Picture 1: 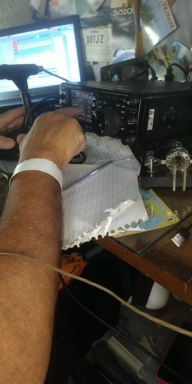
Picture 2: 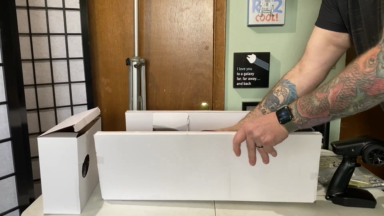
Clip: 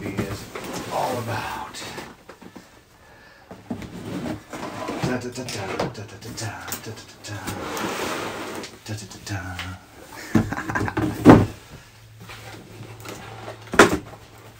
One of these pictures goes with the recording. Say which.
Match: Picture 2